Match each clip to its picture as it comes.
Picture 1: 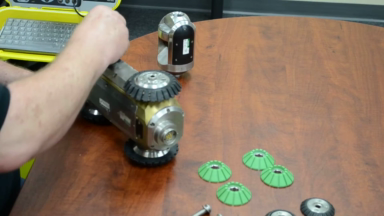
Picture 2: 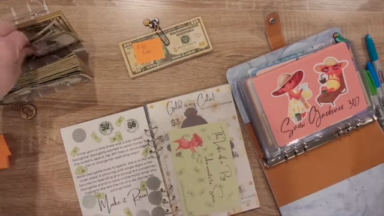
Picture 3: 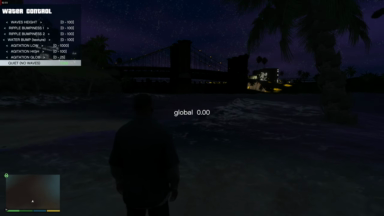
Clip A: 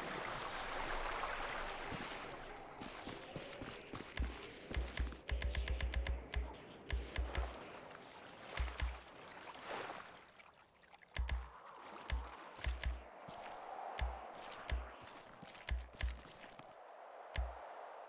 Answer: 3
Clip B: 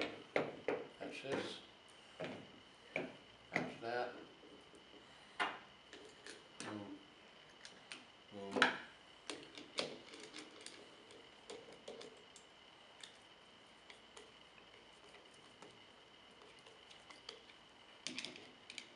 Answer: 1